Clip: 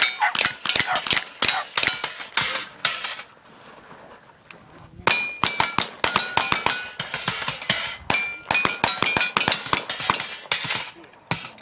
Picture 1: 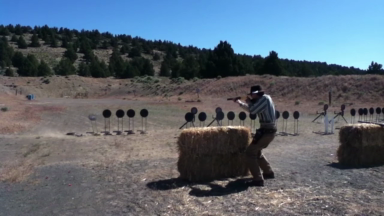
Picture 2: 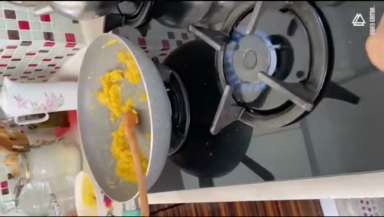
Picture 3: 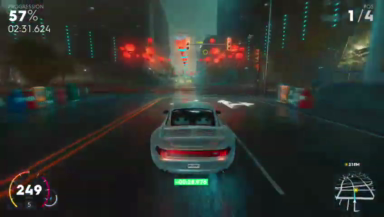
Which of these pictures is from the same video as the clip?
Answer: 1